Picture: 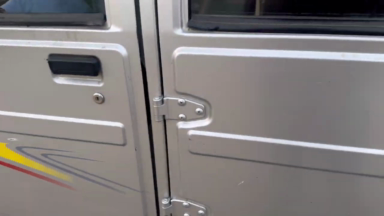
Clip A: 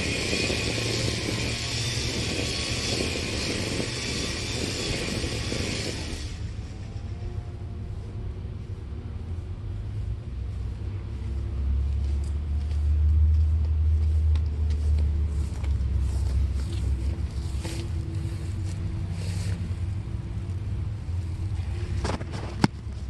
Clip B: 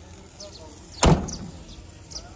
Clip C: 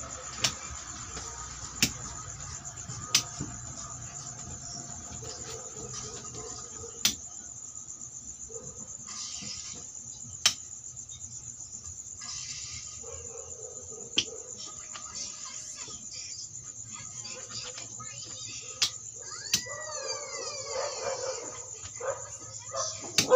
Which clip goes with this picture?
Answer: B